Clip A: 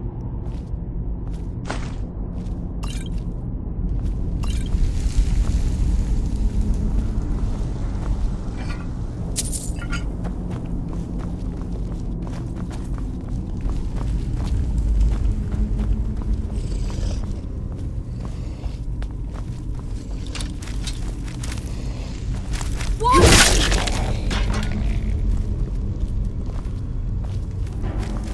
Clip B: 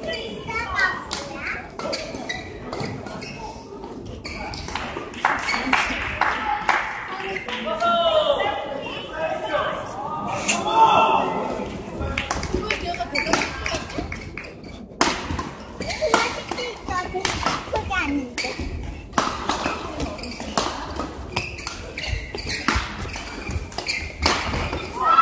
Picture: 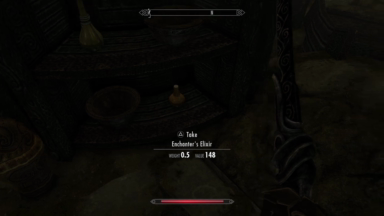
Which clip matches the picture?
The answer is A